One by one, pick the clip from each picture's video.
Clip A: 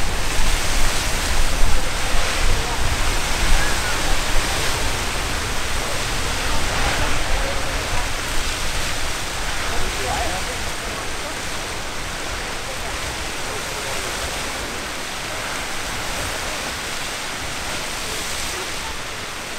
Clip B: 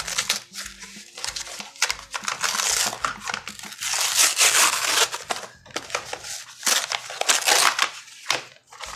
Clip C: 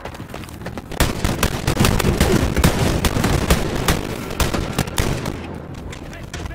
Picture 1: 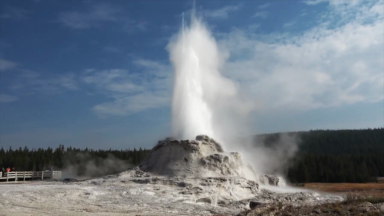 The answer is A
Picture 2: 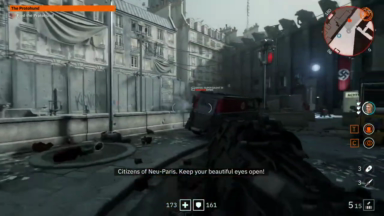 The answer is C